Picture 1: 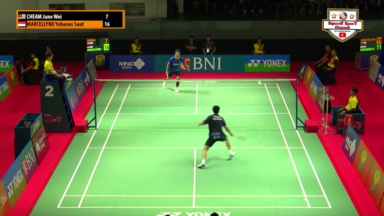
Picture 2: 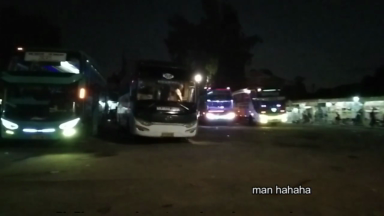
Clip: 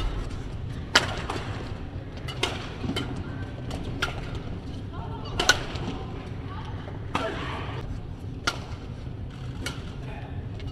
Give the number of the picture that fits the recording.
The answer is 1